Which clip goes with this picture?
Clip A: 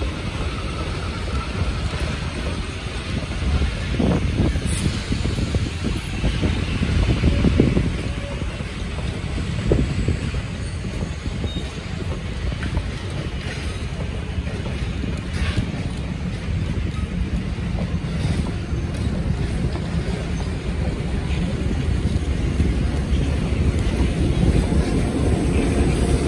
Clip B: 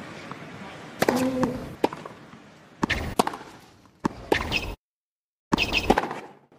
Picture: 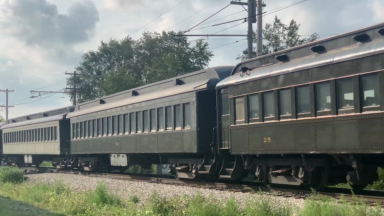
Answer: A